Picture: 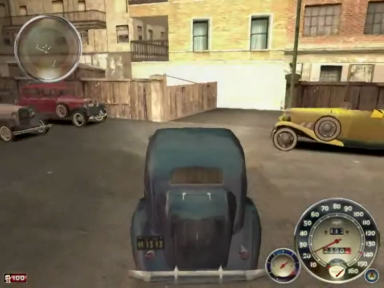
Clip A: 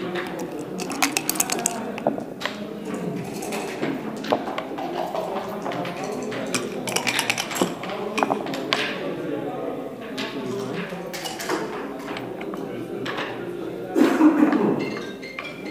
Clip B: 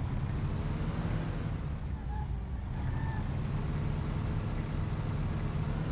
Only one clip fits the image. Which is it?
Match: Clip B